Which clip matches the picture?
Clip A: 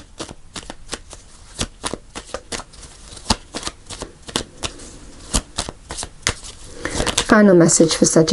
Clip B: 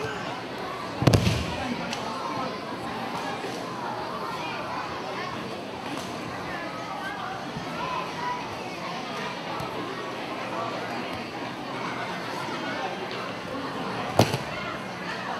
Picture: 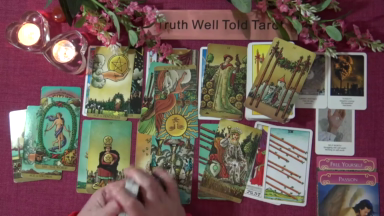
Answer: A